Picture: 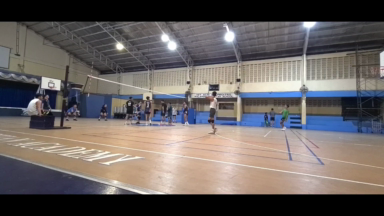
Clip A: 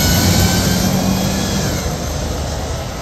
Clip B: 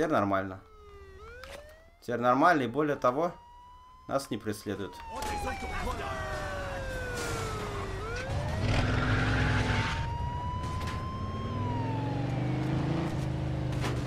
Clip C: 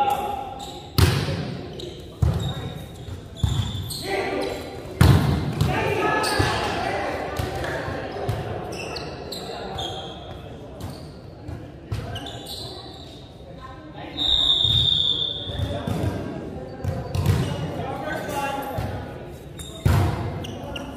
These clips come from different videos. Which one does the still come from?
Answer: C